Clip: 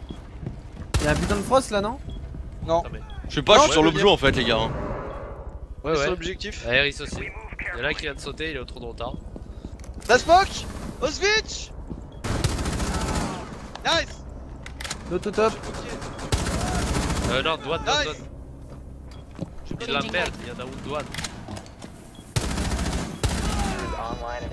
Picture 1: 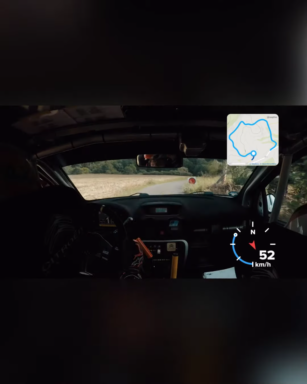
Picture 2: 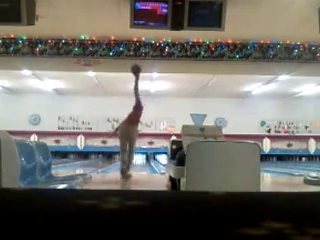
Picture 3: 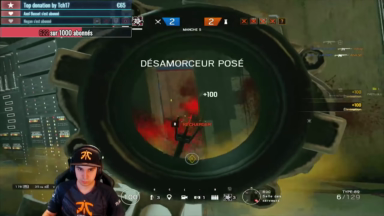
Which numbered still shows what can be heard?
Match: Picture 3